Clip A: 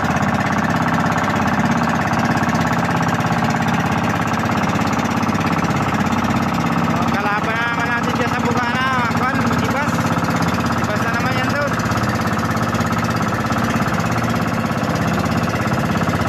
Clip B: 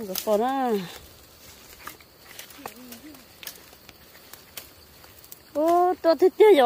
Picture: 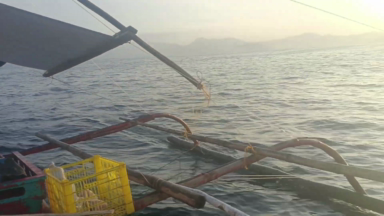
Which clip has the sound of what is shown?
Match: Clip A